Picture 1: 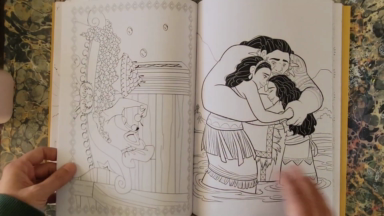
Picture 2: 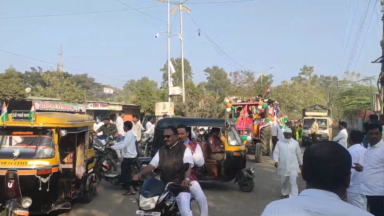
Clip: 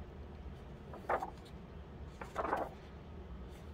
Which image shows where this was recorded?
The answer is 1